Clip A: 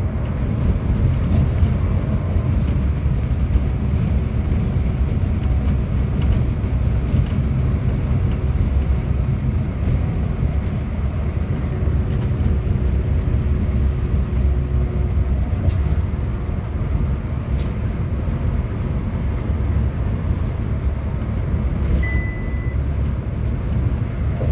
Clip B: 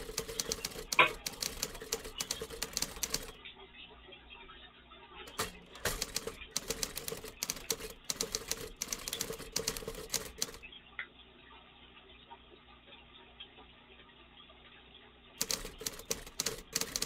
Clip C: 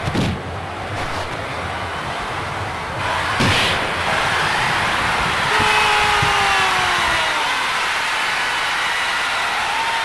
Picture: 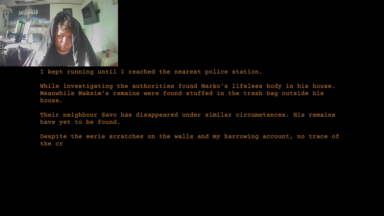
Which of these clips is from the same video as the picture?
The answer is B